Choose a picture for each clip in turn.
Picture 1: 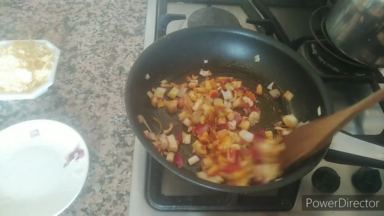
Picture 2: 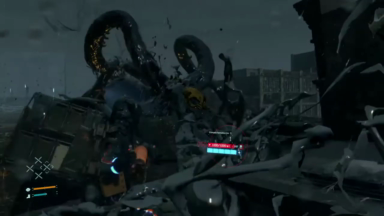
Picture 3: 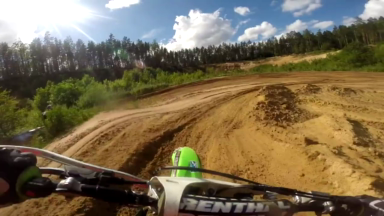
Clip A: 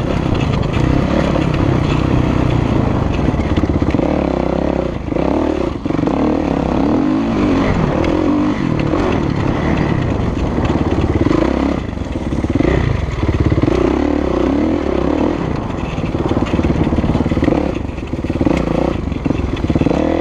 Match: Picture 3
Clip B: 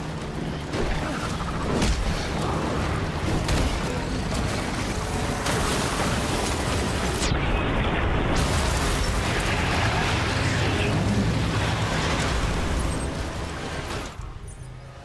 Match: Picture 2